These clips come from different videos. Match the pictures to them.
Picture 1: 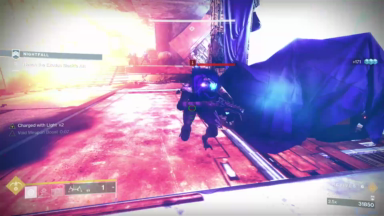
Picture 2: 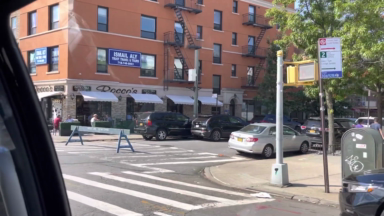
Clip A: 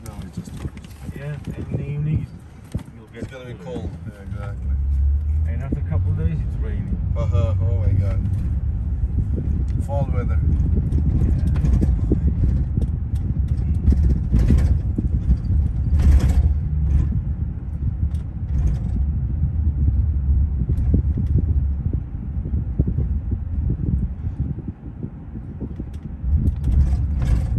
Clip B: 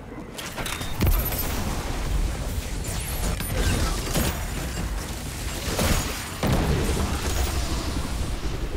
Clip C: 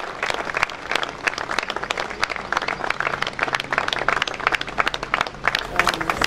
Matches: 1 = B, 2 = A